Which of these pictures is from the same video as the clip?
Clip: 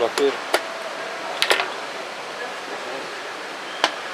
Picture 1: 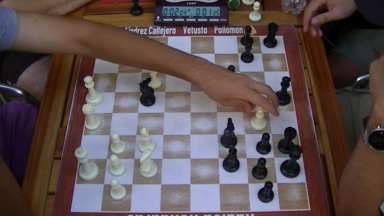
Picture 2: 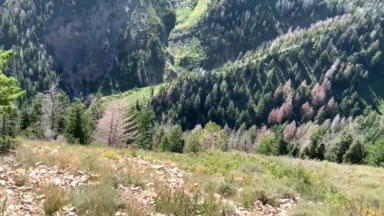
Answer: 1